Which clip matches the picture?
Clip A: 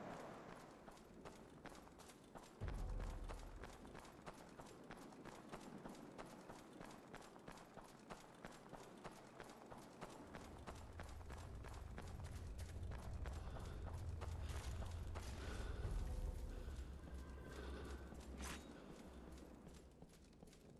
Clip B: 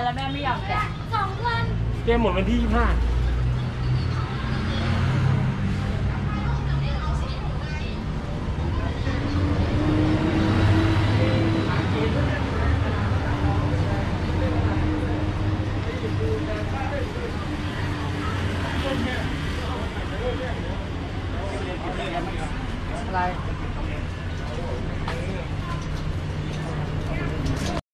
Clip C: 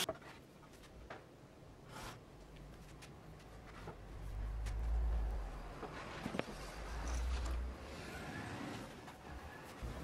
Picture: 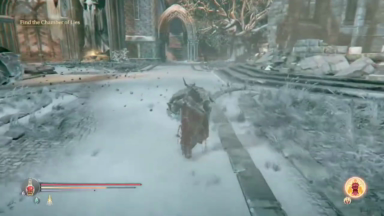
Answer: A